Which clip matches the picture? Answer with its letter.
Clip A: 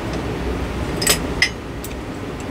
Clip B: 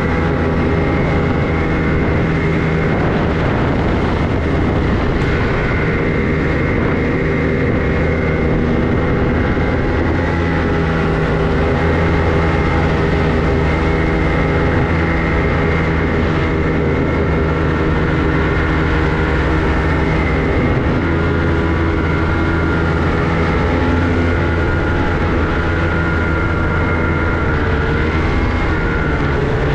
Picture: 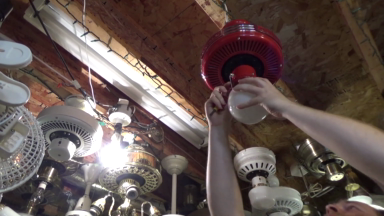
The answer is A